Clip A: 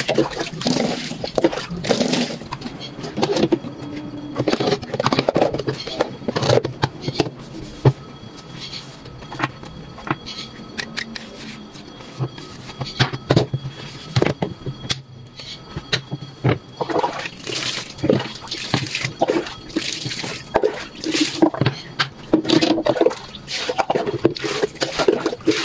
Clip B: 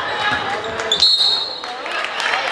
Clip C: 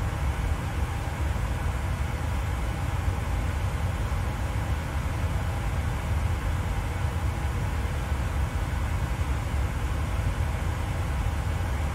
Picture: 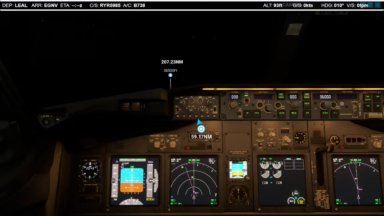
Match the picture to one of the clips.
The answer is C